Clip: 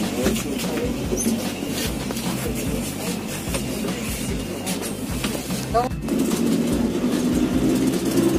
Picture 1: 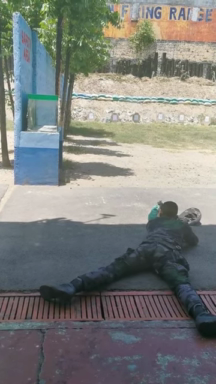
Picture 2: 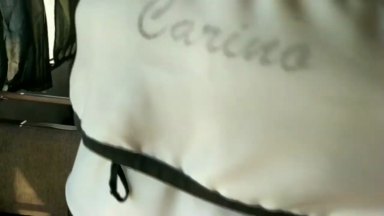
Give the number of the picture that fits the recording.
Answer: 2